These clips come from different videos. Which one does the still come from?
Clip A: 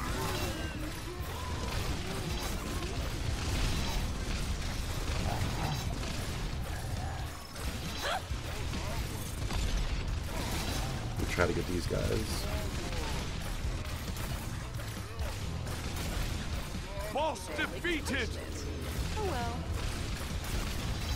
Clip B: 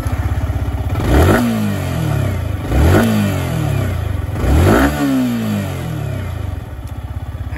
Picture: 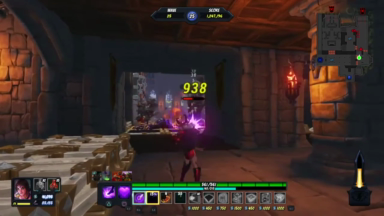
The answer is A